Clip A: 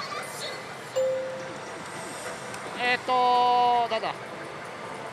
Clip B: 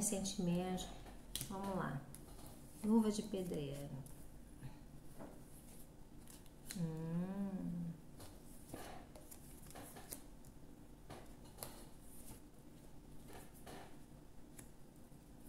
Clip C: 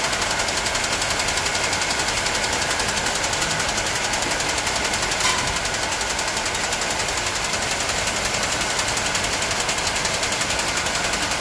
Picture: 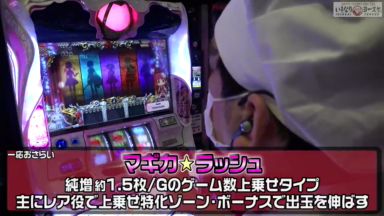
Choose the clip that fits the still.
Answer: A